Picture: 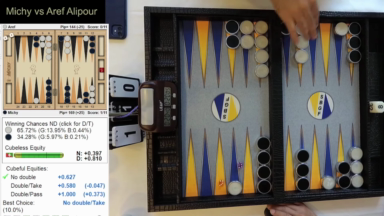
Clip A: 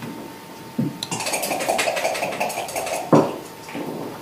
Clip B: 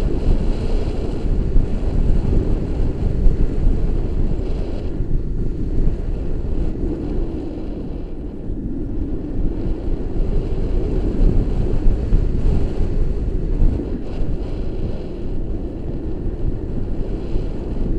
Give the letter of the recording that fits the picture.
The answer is A